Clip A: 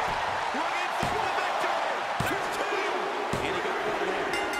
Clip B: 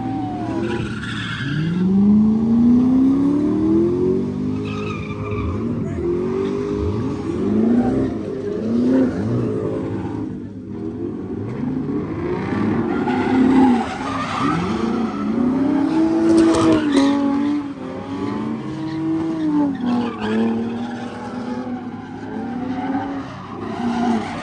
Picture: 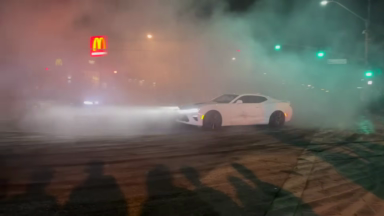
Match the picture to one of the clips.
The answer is B